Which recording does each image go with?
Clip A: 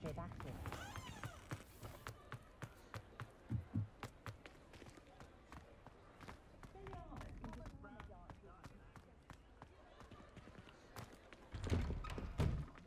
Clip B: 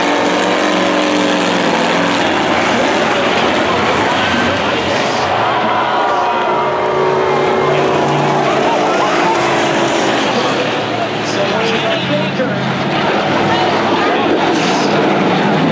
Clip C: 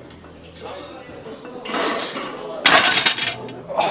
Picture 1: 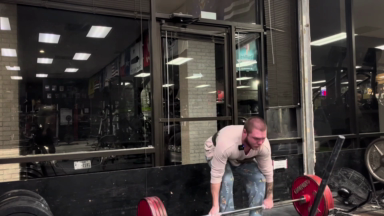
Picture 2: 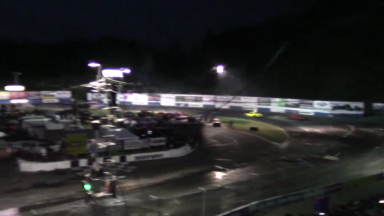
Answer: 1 C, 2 B